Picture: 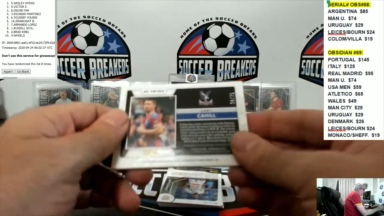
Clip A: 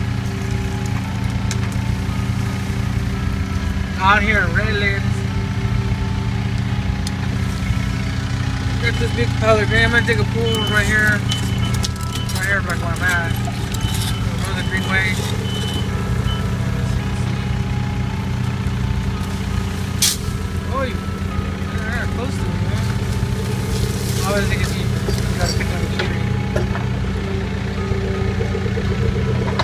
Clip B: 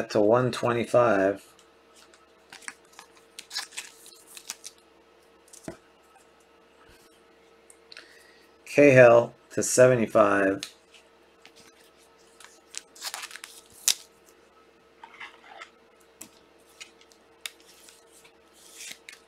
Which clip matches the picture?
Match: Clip B